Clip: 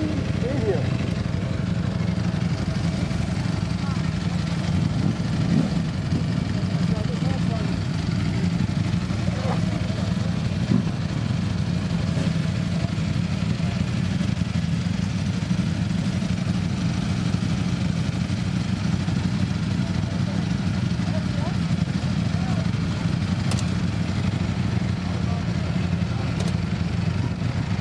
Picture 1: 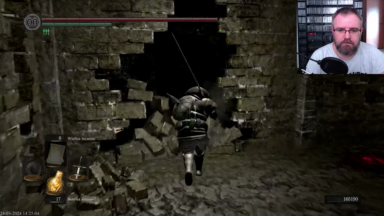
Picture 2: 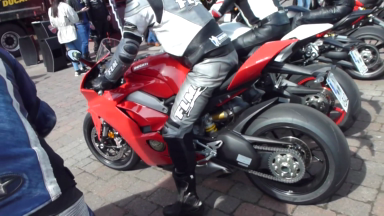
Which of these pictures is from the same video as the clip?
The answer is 2